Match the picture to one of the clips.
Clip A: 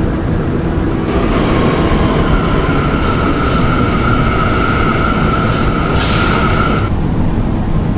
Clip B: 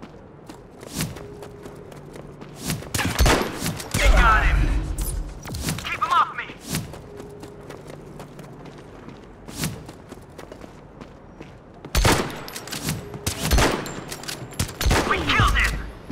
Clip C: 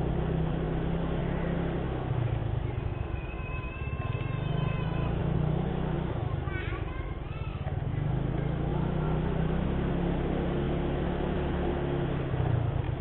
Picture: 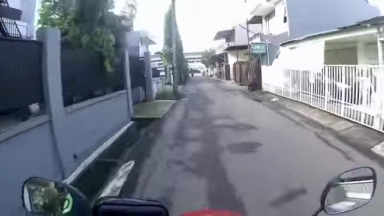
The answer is C